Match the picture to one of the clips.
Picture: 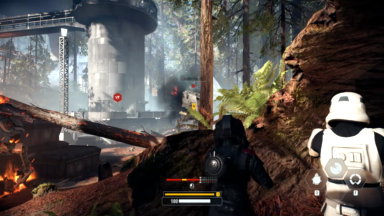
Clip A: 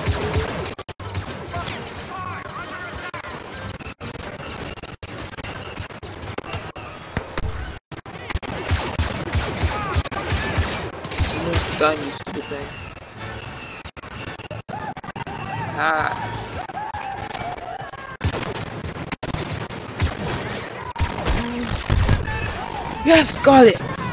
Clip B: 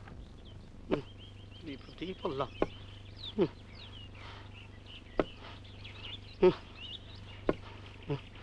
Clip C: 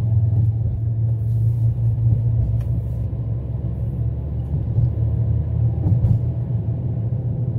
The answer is A